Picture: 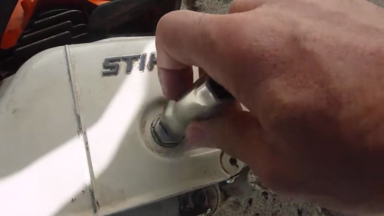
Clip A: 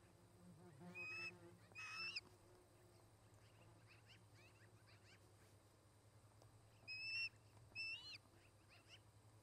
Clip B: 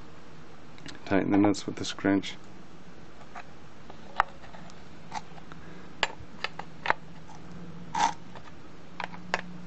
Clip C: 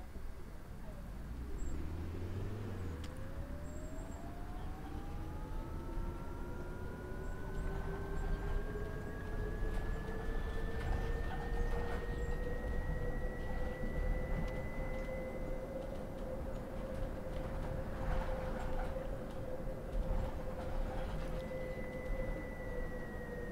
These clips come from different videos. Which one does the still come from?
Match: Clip B